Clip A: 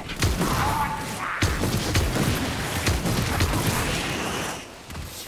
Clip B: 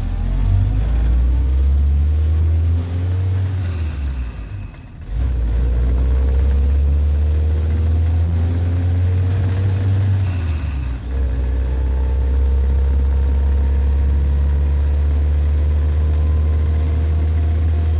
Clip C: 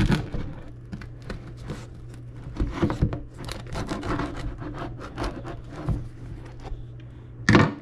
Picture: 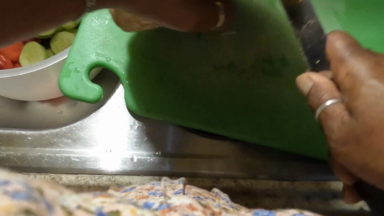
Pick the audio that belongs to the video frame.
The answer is C